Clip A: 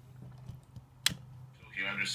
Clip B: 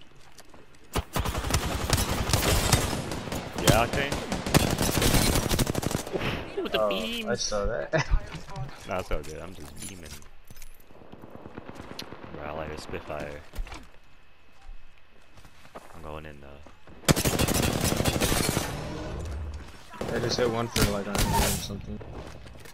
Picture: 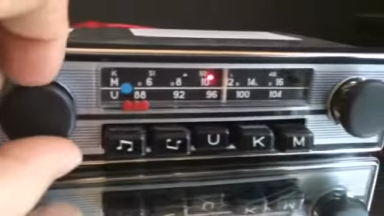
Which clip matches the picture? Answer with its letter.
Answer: A